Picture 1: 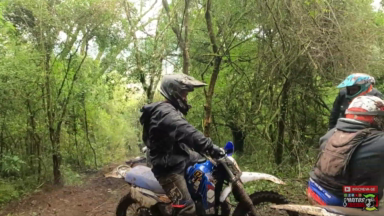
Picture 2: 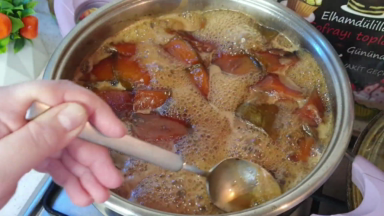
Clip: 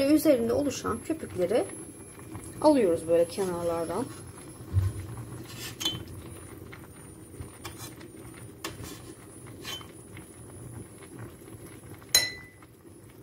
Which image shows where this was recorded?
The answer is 2